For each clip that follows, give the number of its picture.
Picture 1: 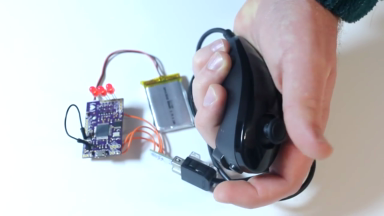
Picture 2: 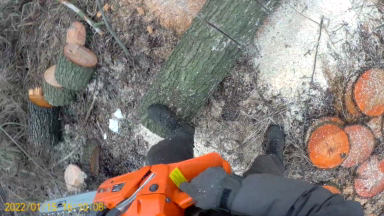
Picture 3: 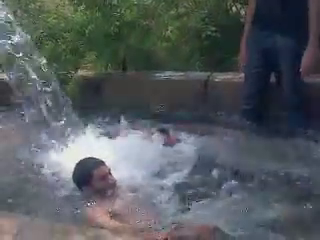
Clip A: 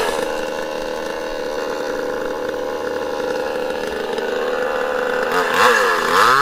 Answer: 2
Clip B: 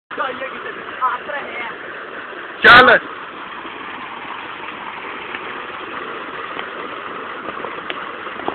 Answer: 3